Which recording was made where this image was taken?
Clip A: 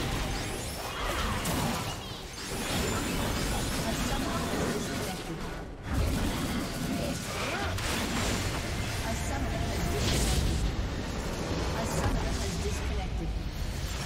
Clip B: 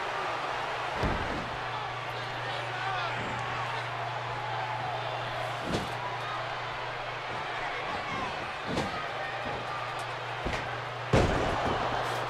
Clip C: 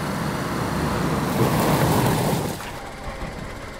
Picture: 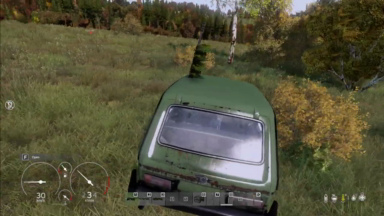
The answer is C